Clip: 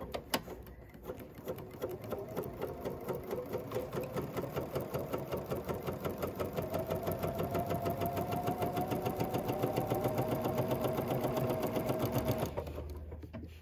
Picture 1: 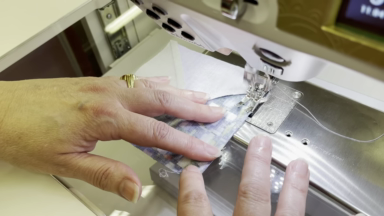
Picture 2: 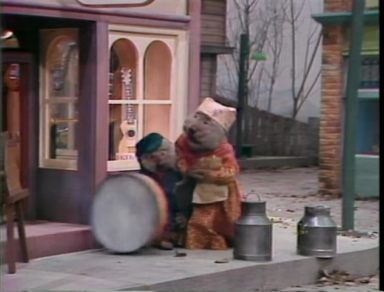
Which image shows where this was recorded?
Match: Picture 1